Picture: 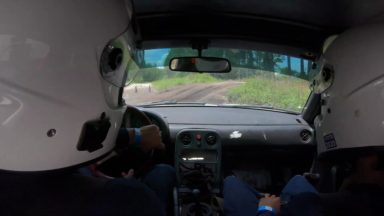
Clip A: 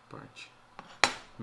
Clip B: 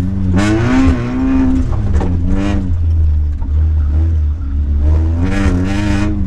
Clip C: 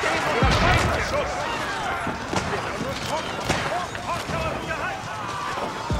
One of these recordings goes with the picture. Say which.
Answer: B